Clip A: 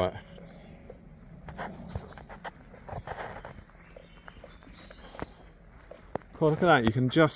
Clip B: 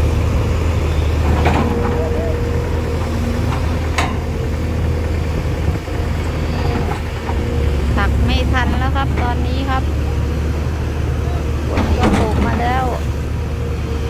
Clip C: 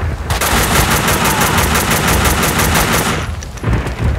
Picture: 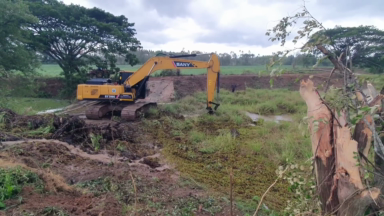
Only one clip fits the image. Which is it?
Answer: B